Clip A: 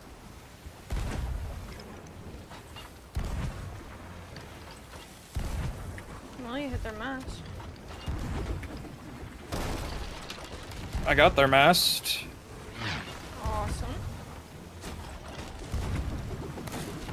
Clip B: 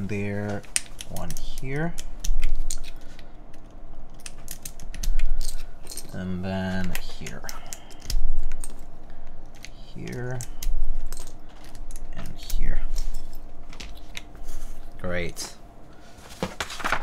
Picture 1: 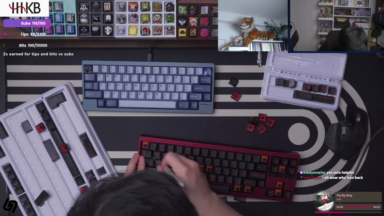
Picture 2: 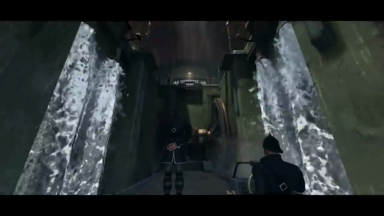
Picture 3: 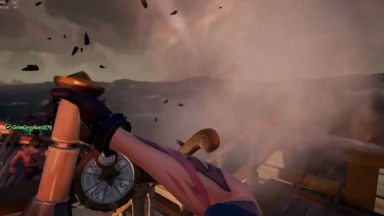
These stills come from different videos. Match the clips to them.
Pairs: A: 3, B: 1